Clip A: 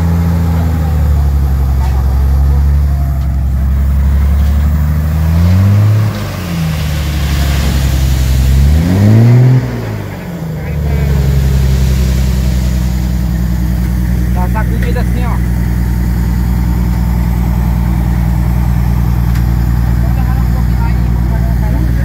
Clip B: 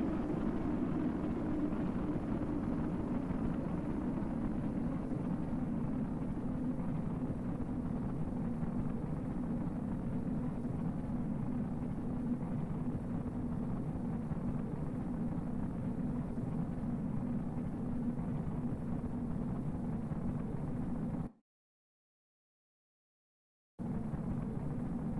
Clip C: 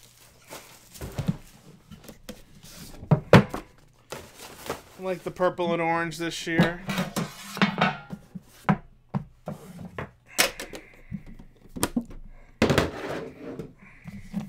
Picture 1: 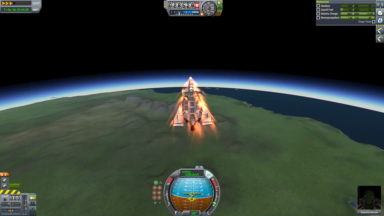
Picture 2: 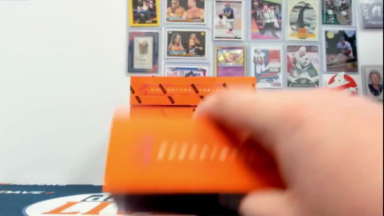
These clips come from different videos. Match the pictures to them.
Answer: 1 B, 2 C